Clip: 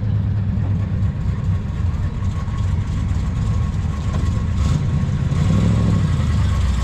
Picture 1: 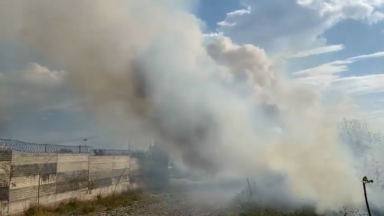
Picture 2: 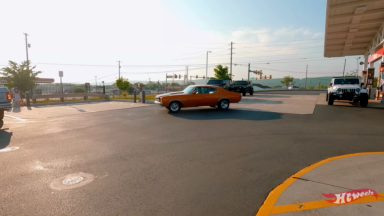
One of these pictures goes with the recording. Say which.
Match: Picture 2